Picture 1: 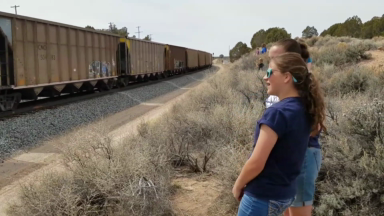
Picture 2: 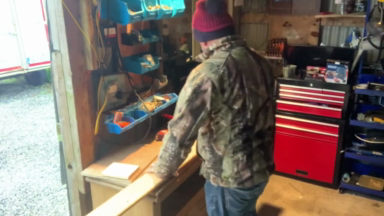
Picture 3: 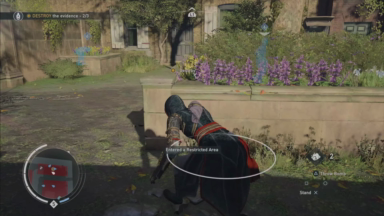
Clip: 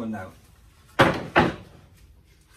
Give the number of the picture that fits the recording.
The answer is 2